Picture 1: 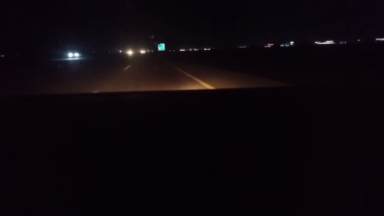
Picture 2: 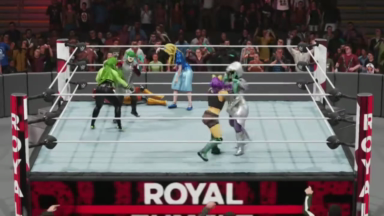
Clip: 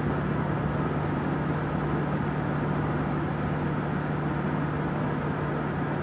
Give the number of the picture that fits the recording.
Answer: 1